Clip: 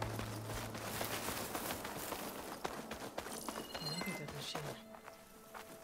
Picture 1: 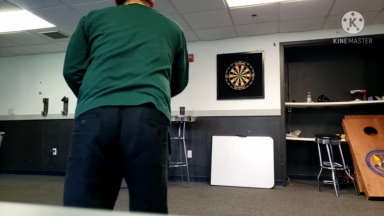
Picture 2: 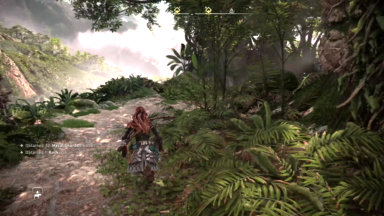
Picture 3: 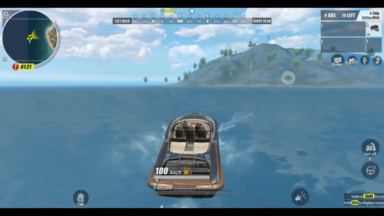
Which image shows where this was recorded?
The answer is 2